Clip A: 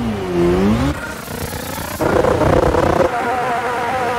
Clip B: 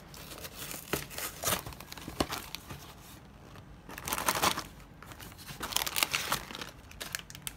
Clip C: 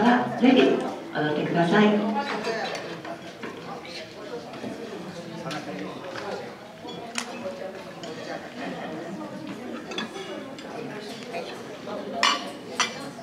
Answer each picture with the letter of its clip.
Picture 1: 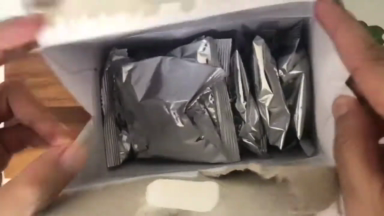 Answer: B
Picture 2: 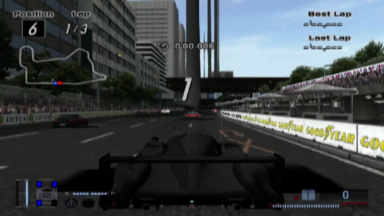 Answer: A